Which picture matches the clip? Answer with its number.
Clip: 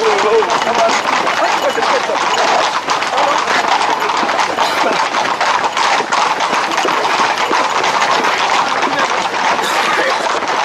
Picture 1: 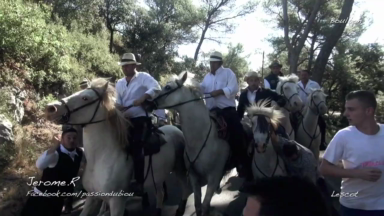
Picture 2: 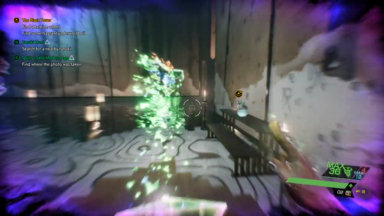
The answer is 1